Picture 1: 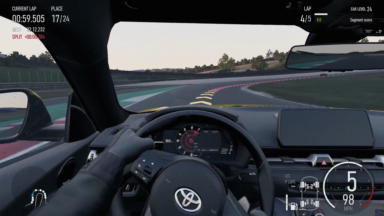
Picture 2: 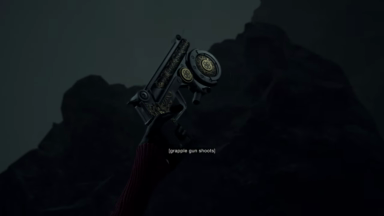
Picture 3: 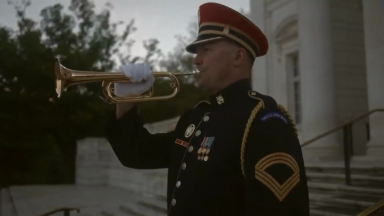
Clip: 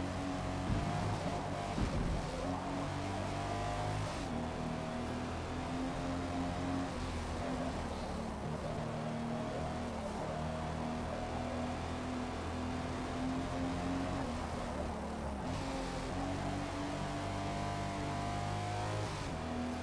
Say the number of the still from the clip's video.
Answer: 1